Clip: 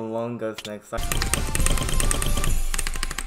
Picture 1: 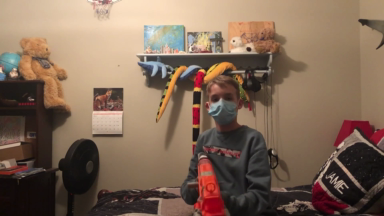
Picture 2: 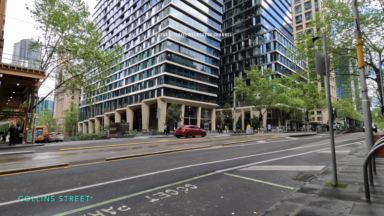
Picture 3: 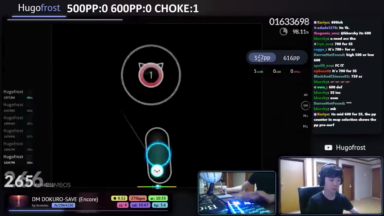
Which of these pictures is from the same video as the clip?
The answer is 3